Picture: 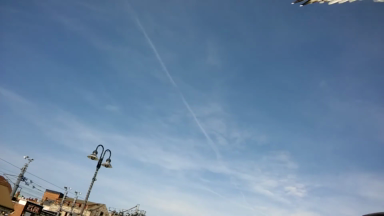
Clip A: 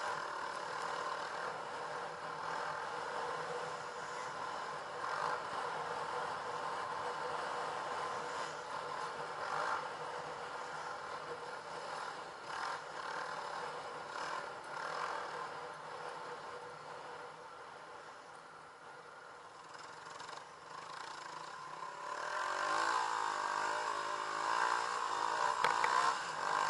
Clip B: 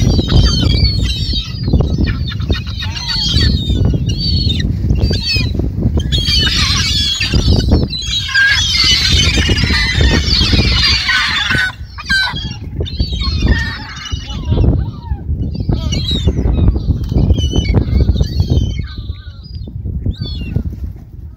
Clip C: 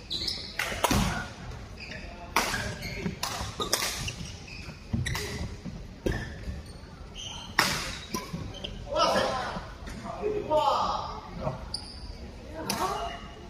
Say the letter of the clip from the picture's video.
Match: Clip B